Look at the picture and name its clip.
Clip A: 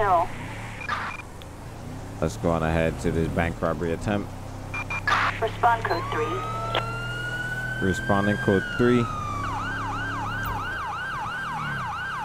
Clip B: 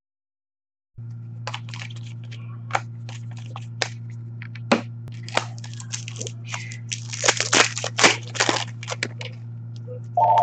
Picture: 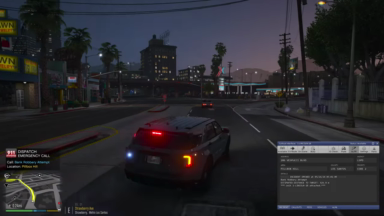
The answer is A